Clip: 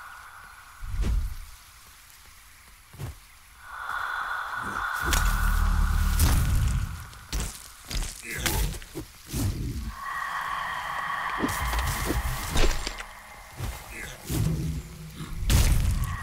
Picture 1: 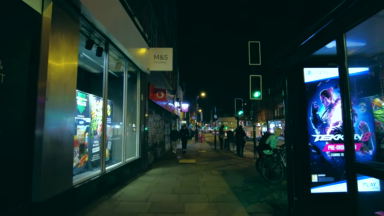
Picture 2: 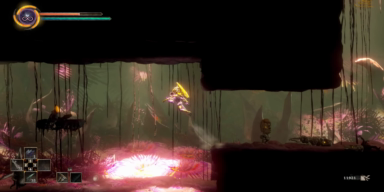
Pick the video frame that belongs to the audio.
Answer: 2